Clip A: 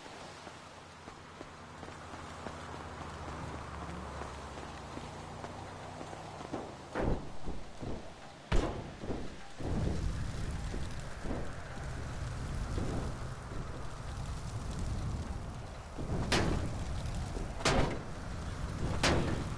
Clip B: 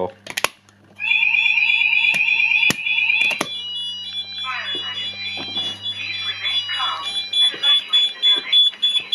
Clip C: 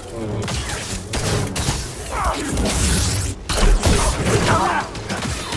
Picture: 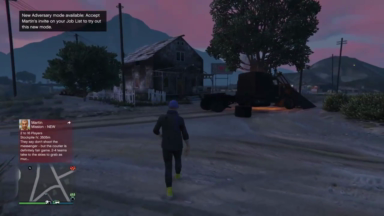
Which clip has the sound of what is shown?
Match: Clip A